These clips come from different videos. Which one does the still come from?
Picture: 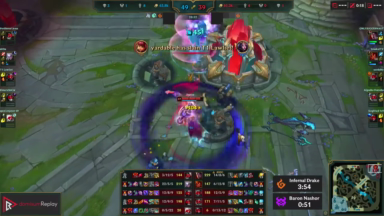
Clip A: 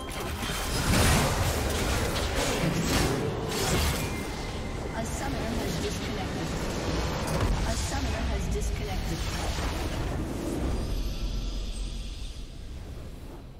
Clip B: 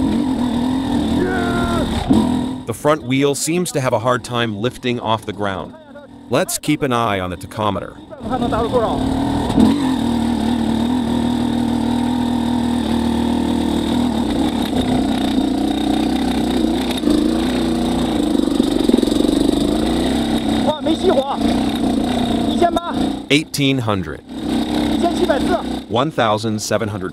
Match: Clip A